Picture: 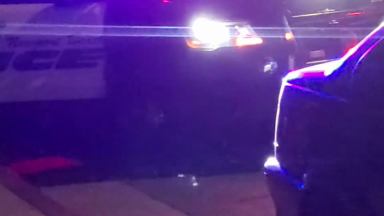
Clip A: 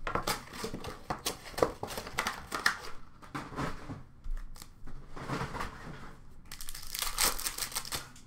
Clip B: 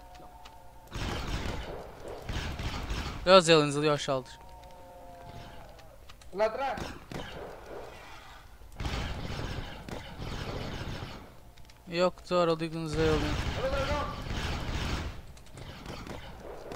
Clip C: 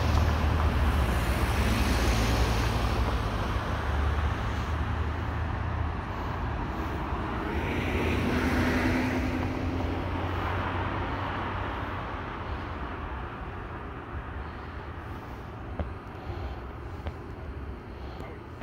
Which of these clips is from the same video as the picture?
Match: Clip C